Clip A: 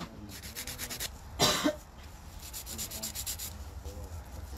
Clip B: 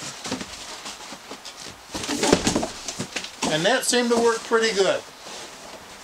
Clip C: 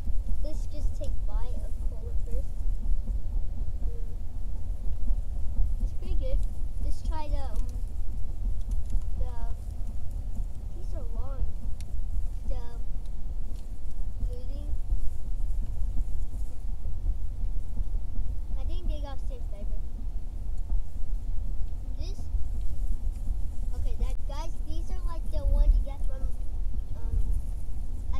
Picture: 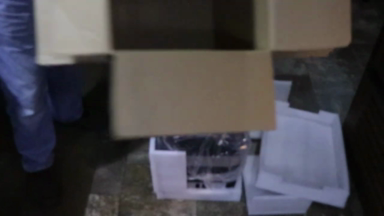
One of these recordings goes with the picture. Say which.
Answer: B